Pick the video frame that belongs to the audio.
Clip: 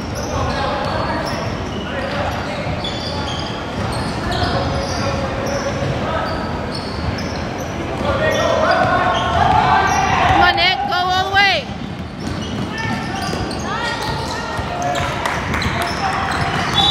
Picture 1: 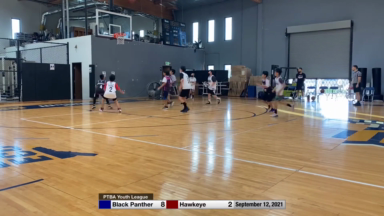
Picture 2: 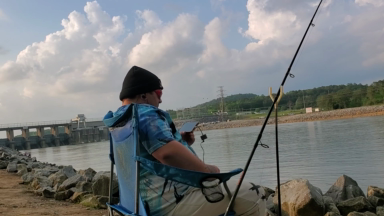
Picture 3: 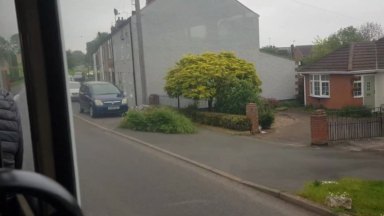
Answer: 1